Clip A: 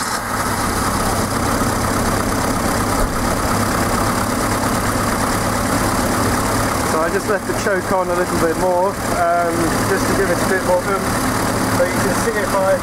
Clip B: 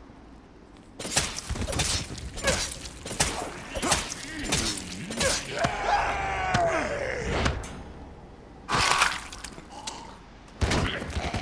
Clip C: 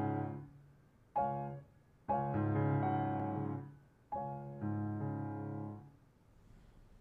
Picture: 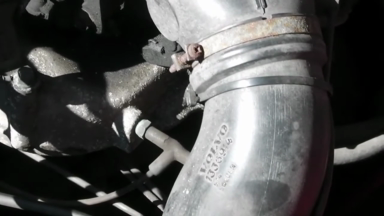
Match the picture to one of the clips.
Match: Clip A